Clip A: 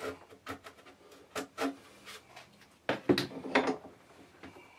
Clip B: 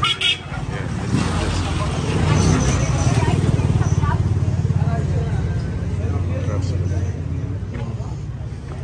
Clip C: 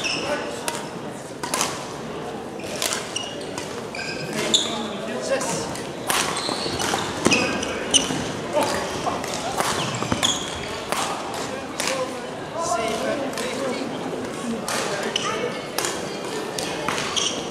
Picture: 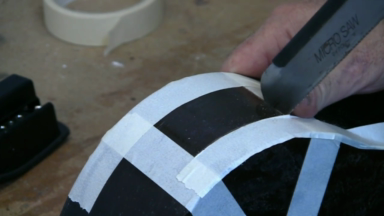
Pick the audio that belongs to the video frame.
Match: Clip A